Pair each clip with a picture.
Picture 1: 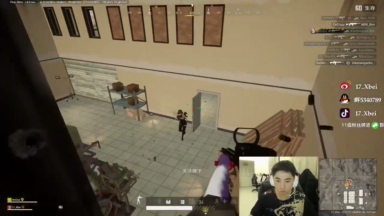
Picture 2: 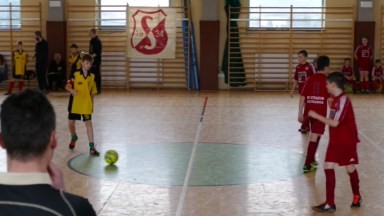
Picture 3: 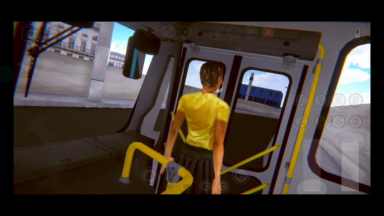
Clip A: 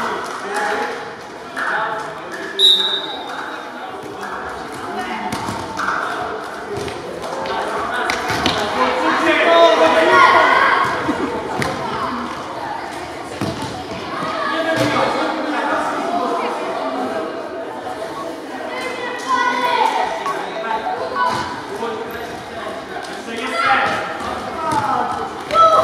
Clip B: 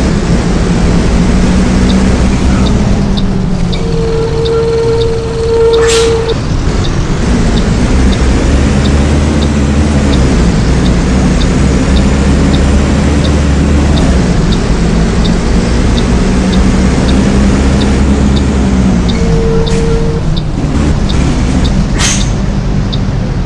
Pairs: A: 2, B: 3